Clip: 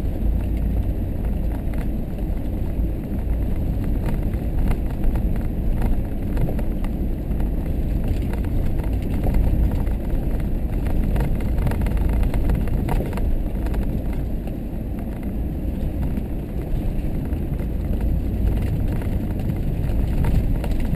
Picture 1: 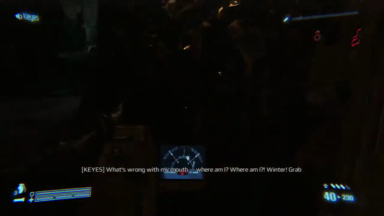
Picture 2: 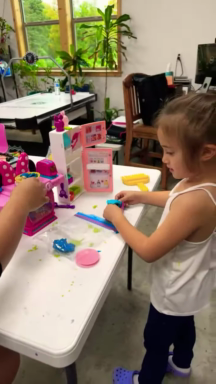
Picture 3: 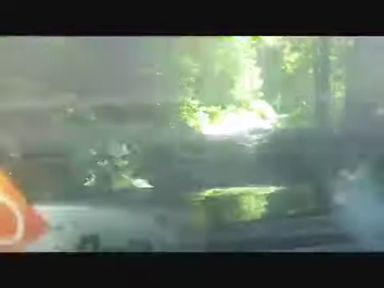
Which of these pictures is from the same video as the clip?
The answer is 3